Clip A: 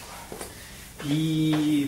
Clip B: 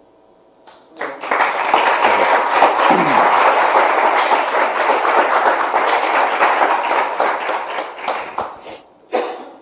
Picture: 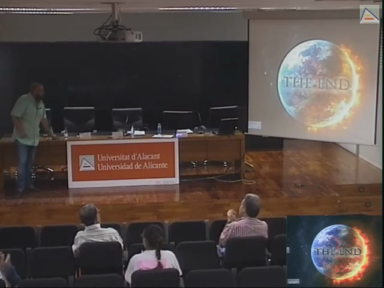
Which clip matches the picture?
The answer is B